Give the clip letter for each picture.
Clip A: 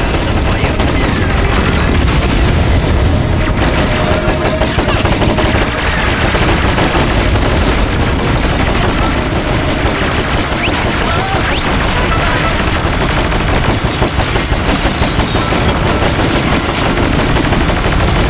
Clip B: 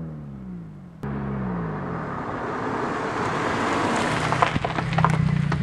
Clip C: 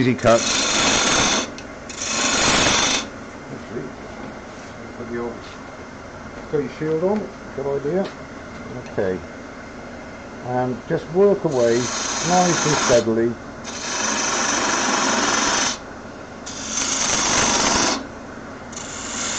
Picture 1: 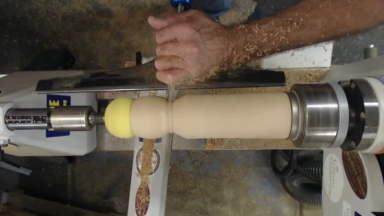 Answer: C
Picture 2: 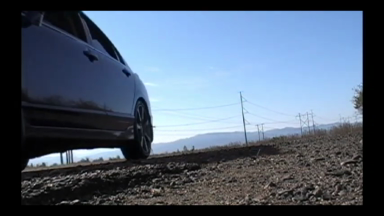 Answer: B